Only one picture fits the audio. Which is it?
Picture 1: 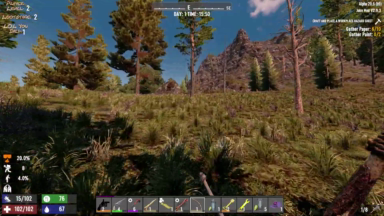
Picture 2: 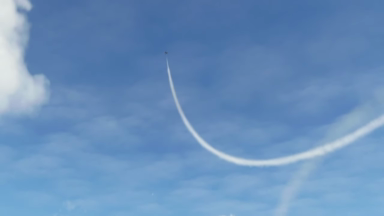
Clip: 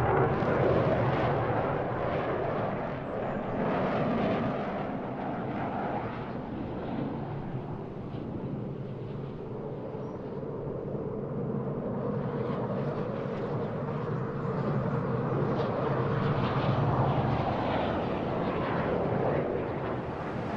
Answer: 2